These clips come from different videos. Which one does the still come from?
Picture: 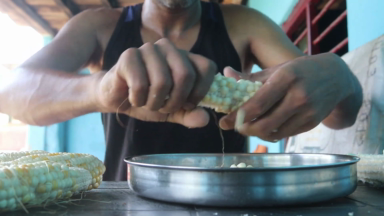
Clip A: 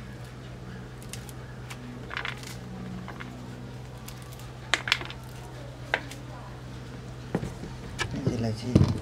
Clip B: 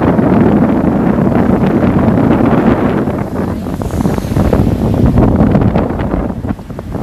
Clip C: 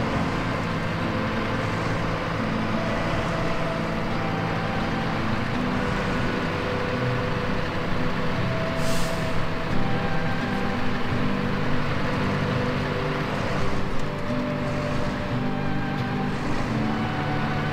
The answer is A